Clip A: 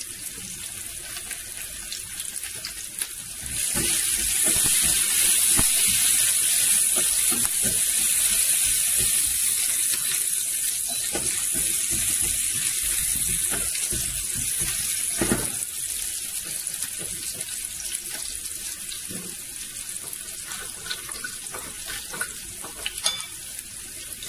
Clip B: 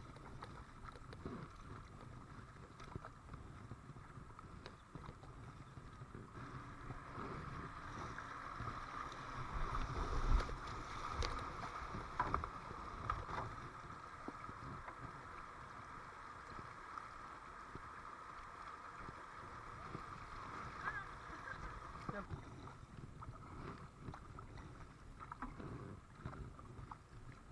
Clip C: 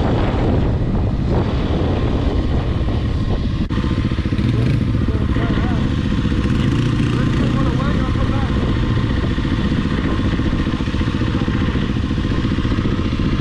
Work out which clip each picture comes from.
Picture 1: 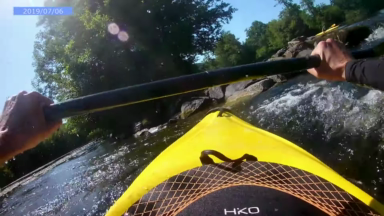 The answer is B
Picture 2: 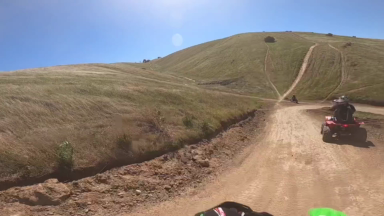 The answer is C